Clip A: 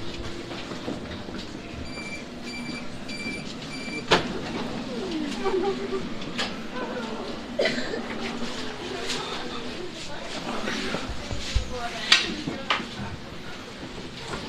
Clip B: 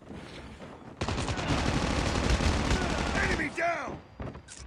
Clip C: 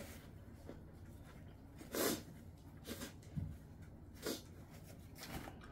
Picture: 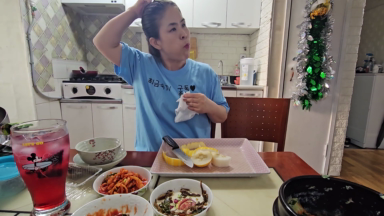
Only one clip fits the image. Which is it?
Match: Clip C